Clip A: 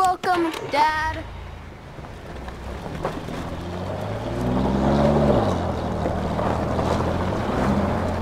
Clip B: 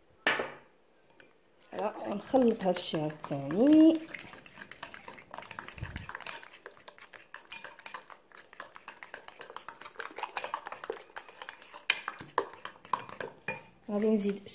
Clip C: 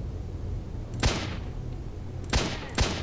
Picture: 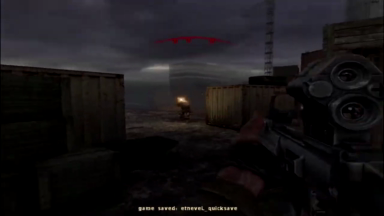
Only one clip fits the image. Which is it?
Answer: C